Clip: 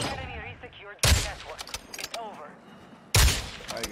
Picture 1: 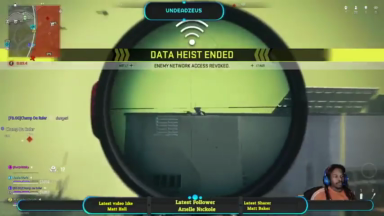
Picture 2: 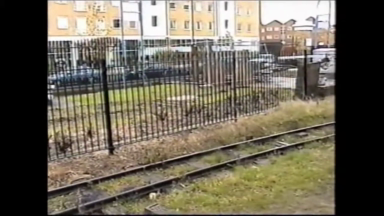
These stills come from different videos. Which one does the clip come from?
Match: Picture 1